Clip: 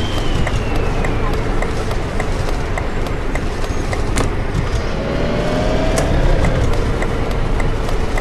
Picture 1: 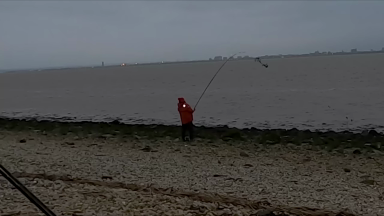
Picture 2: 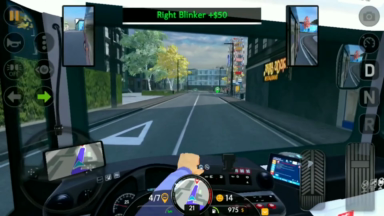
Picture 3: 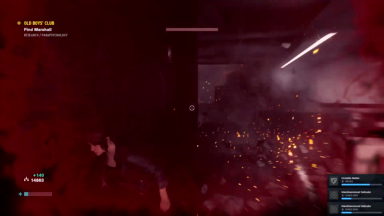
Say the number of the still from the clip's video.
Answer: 2